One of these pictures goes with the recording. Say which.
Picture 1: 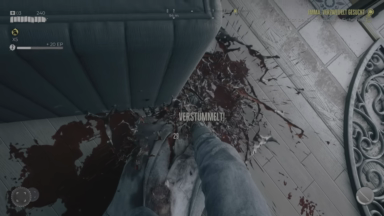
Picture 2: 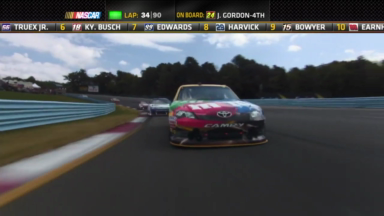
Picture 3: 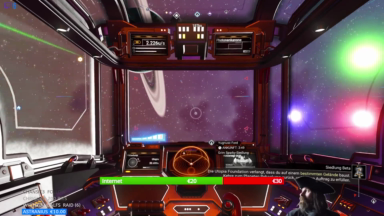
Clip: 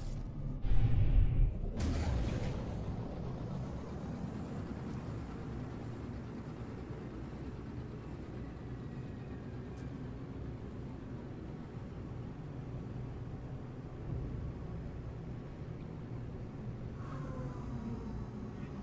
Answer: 3